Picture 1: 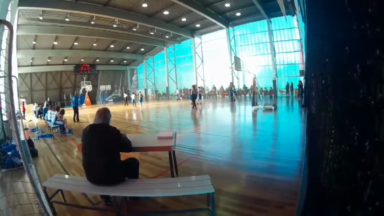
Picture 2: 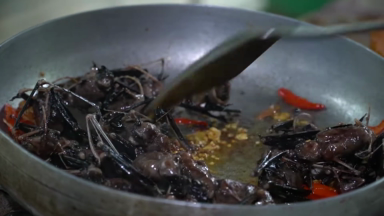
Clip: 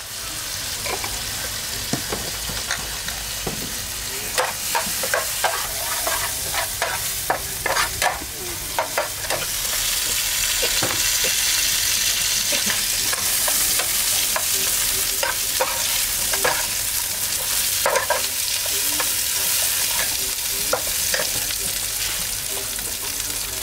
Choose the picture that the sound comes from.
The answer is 2